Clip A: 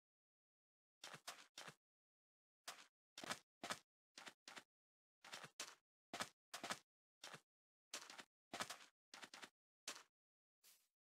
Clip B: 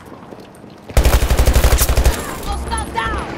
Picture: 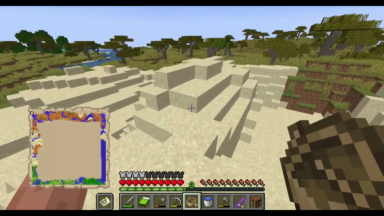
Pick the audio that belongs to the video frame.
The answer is A